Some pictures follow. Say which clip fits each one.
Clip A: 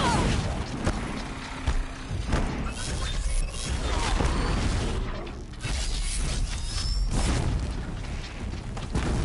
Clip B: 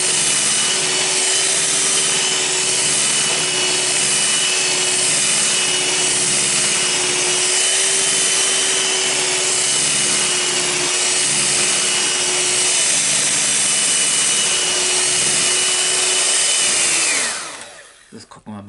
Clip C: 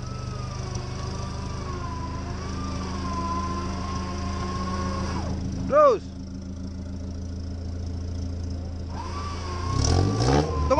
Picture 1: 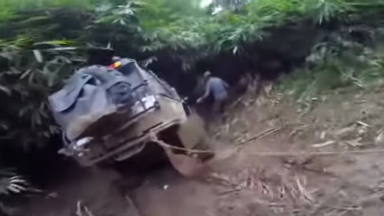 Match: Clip C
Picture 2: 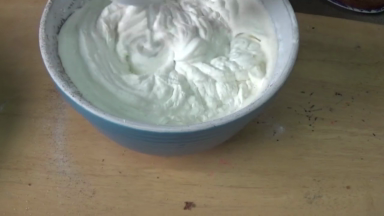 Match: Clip B